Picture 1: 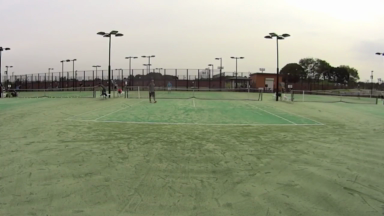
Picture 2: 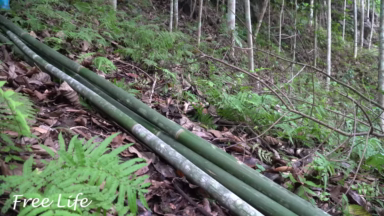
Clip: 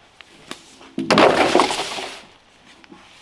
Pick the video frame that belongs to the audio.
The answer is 2